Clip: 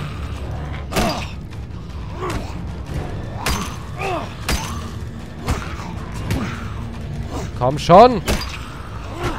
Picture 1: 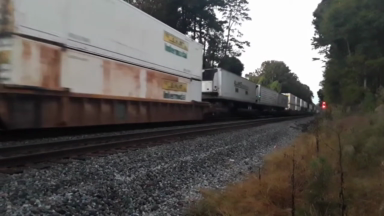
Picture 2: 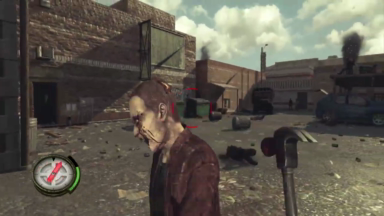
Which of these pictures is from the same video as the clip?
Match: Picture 2